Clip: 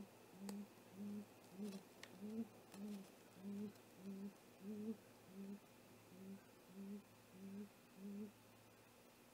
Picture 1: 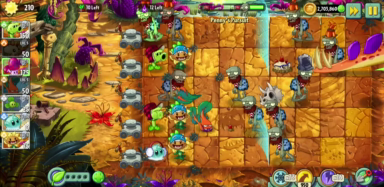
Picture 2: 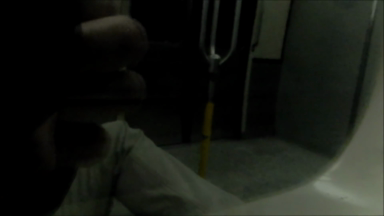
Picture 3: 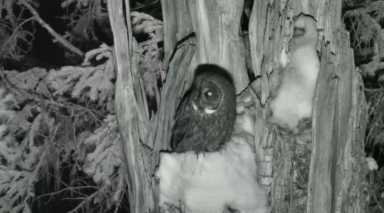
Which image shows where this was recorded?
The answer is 3